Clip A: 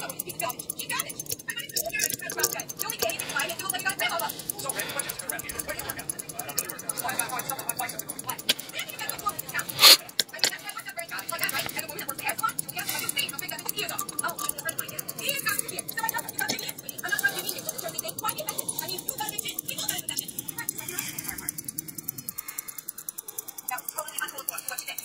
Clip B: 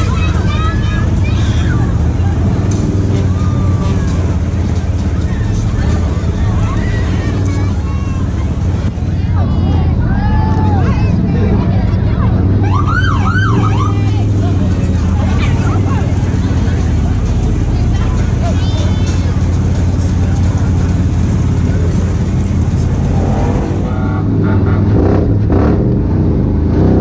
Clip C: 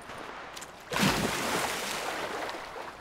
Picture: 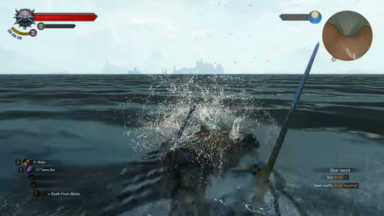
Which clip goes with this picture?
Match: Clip C